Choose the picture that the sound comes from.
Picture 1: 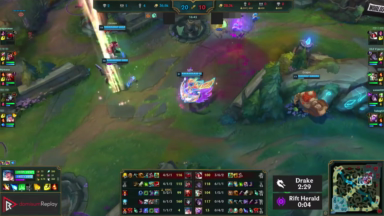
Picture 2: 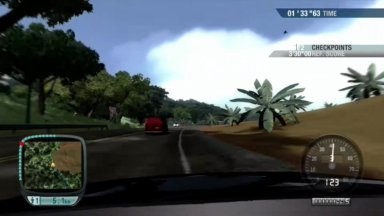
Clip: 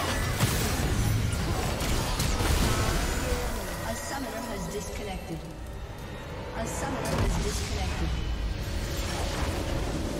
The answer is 1